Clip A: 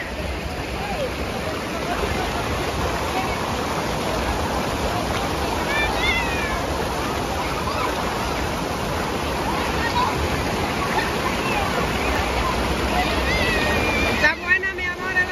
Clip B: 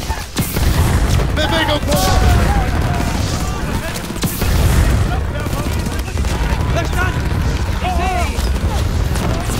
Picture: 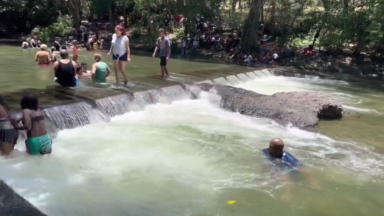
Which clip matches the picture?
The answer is A